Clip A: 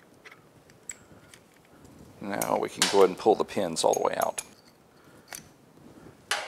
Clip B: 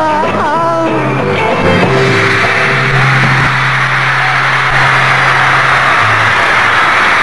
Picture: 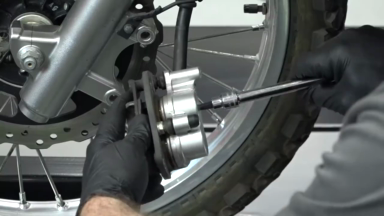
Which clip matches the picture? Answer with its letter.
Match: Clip A